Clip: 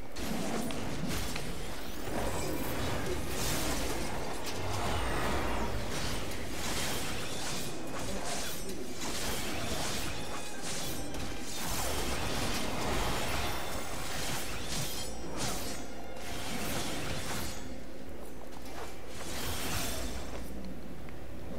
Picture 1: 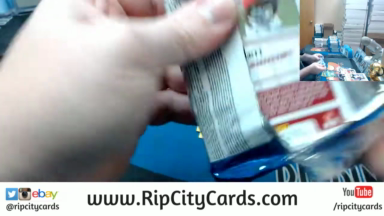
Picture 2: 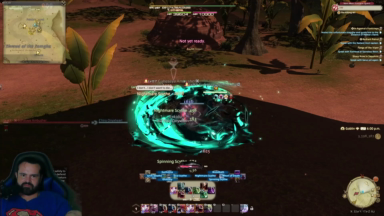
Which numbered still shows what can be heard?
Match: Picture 2